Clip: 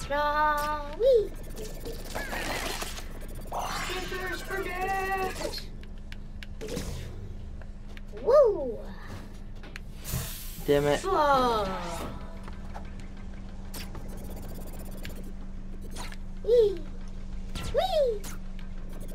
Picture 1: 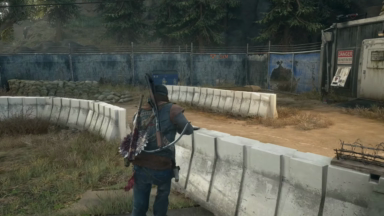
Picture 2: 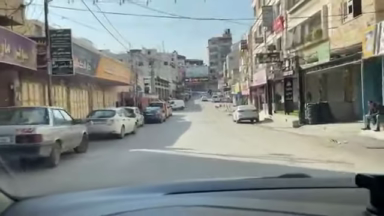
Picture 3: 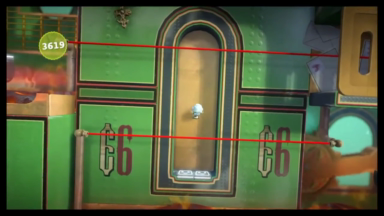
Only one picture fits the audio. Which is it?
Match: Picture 3